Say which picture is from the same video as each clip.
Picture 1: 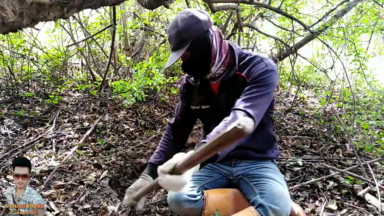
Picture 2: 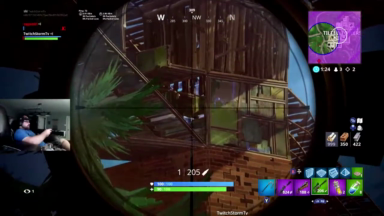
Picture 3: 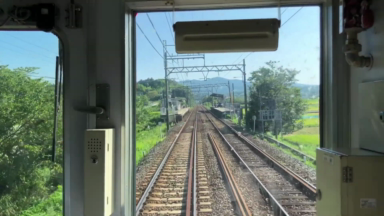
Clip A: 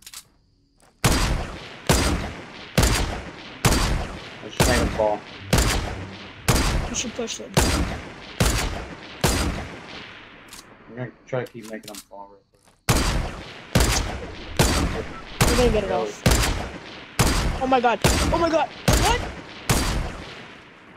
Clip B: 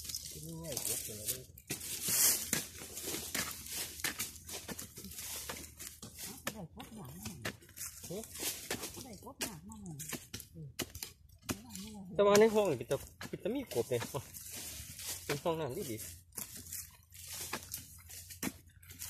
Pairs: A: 2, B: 1